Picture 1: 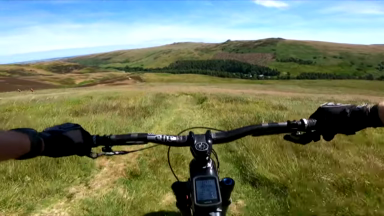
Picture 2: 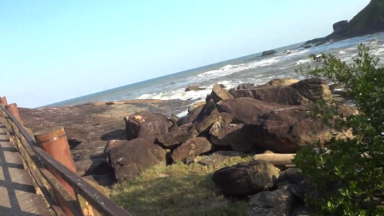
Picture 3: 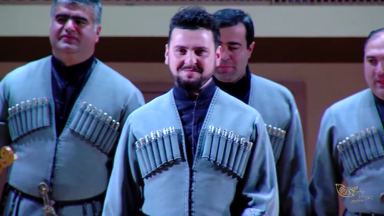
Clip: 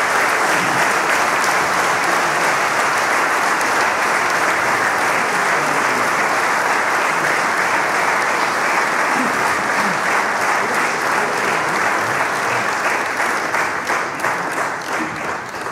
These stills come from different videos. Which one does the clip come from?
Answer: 3